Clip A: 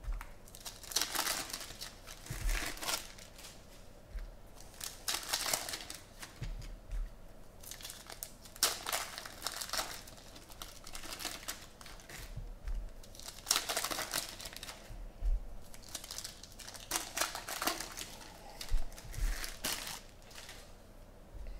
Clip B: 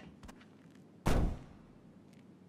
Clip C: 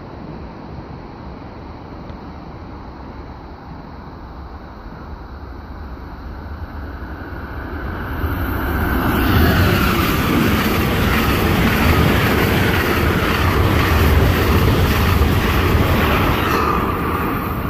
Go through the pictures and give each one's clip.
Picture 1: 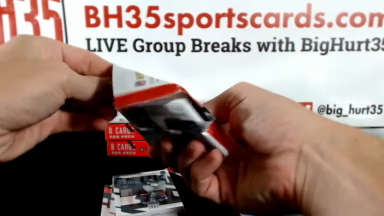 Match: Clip A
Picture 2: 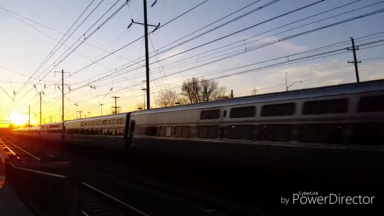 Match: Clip C